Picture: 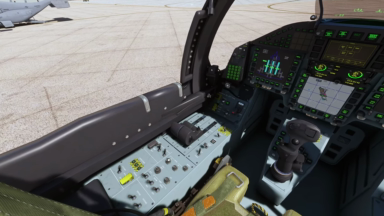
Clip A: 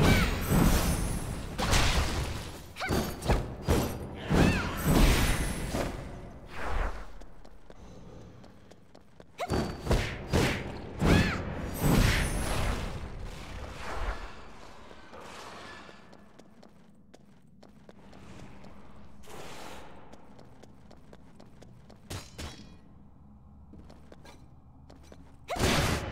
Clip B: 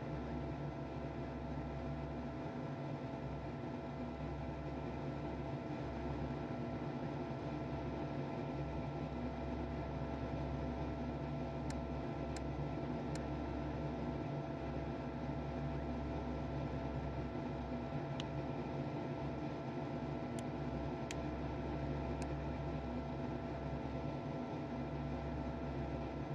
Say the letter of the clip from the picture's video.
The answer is B